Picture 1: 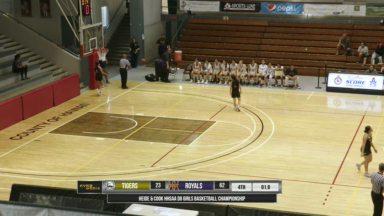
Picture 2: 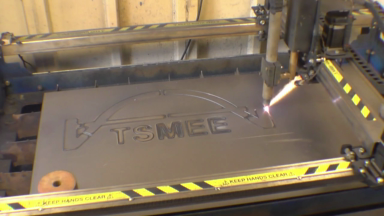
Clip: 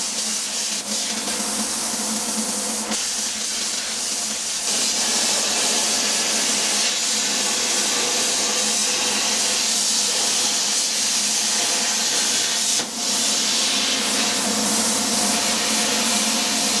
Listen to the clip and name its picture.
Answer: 2